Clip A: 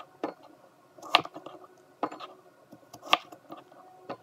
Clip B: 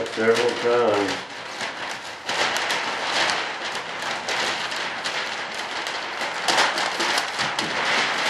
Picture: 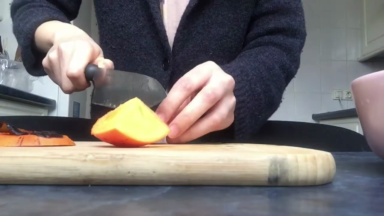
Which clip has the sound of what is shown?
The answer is A